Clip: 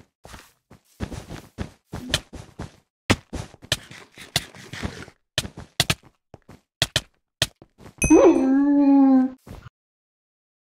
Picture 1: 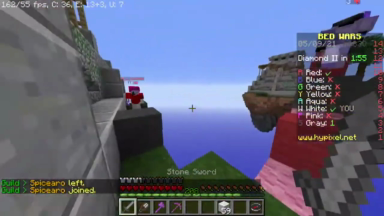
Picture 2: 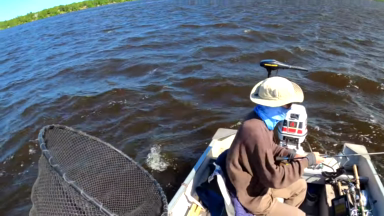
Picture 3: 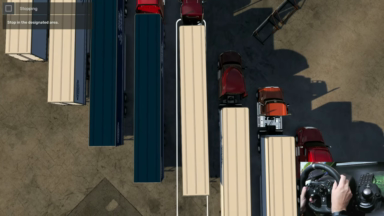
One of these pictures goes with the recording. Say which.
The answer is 1